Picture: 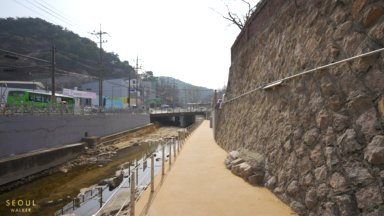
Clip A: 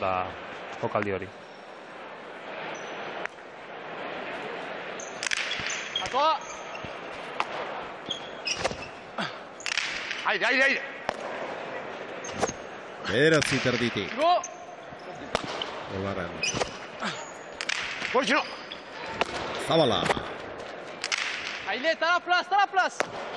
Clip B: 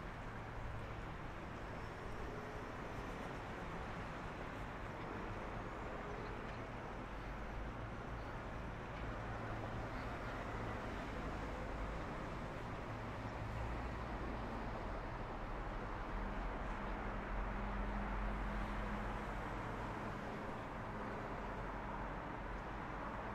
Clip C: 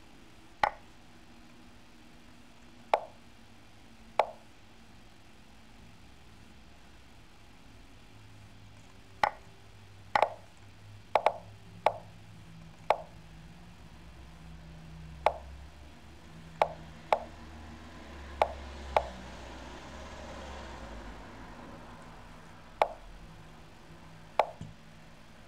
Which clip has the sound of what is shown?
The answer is B